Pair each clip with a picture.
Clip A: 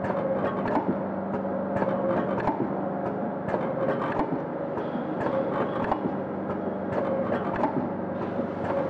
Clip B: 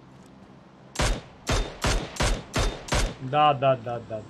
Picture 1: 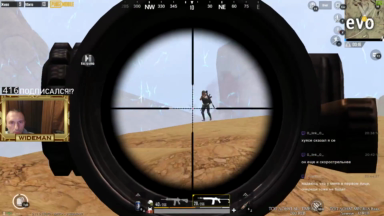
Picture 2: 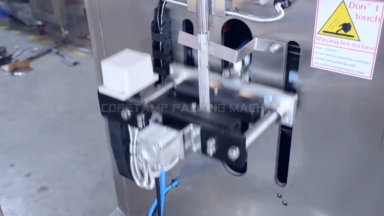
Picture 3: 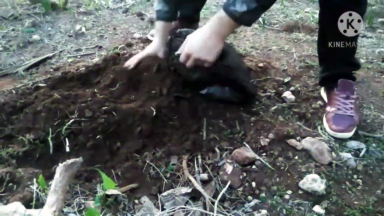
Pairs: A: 2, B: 1